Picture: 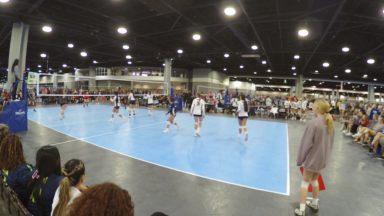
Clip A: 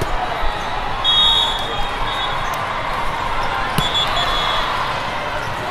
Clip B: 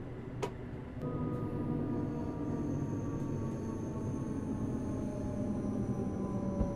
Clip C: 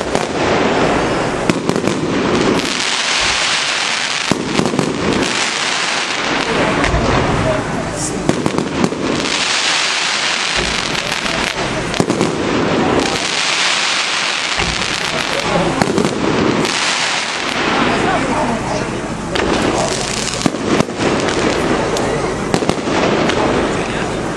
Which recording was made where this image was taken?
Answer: A